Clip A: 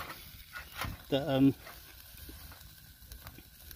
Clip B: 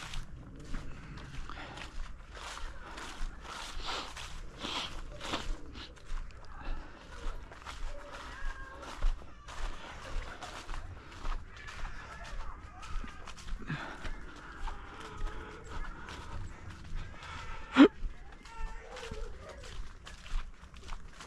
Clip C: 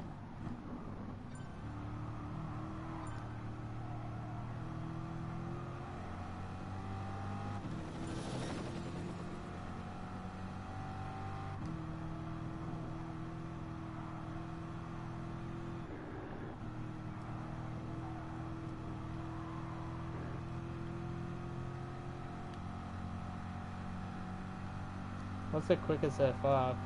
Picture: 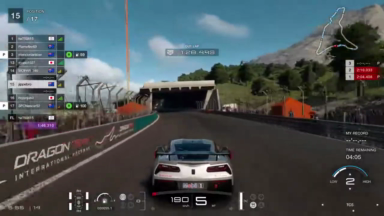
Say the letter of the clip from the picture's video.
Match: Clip C